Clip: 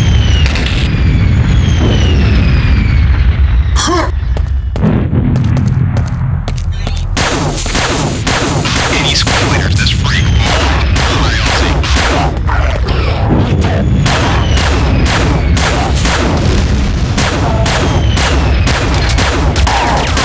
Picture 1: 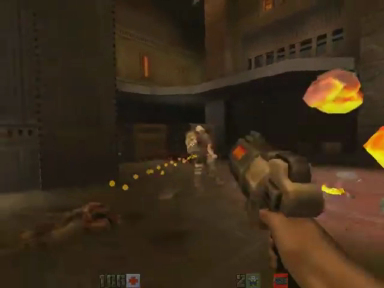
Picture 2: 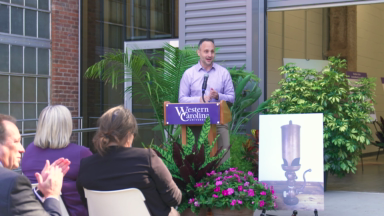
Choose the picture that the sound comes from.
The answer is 1